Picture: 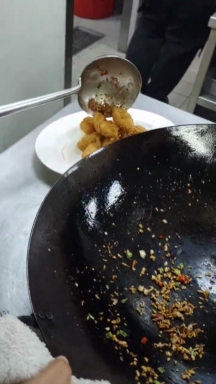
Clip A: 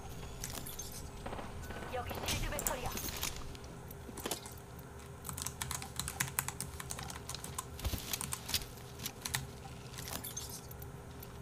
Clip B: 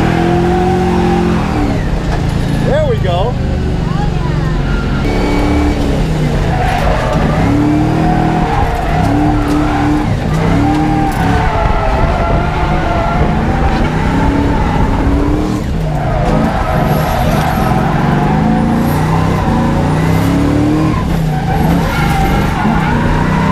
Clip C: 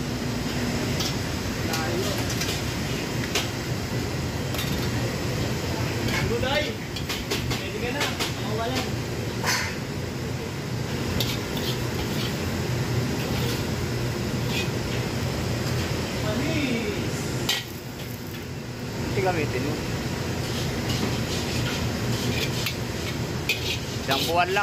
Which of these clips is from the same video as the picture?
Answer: C